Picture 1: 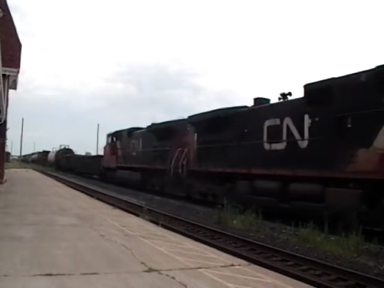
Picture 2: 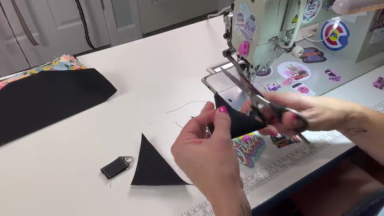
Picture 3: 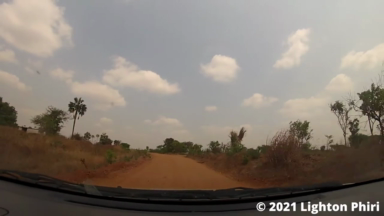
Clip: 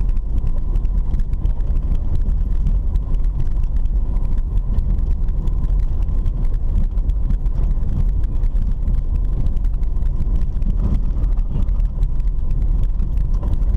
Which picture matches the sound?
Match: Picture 3